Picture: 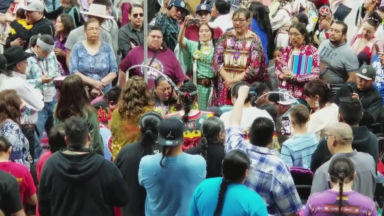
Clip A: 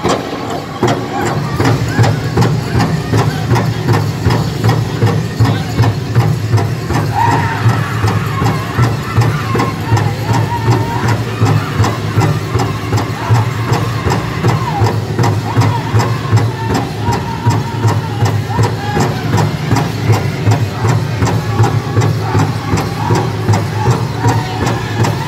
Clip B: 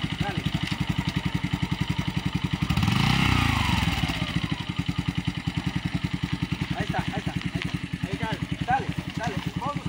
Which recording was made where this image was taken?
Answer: A